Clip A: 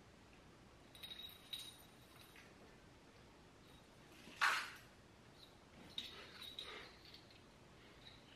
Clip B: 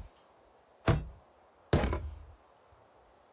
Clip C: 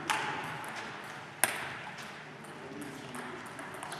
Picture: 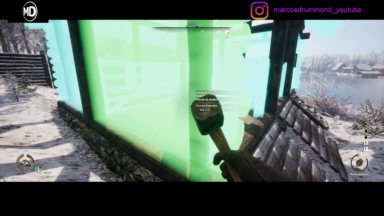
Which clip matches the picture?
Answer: B